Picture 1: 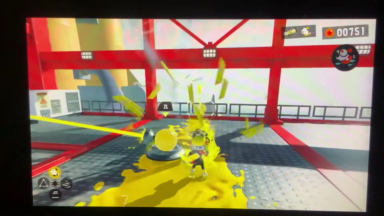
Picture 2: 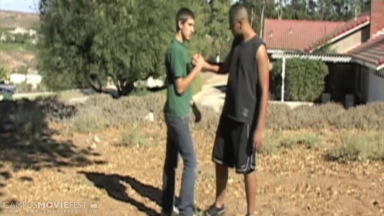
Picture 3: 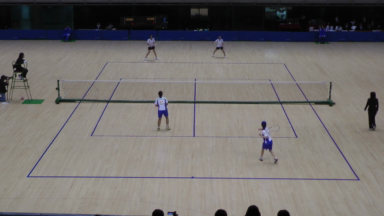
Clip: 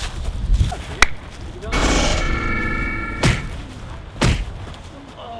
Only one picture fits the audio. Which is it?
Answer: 2